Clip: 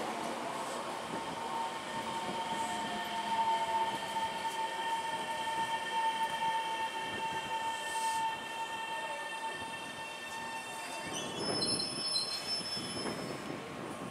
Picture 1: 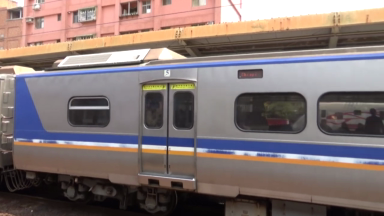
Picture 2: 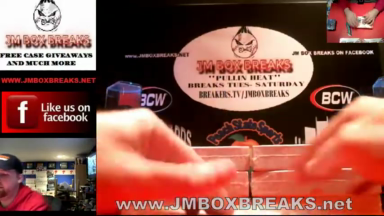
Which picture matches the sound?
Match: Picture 1